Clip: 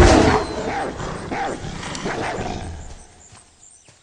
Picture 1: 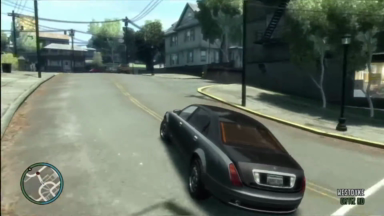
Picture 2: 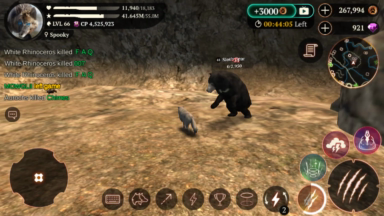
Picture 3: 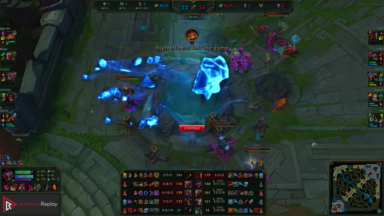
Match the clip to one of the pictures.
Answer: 2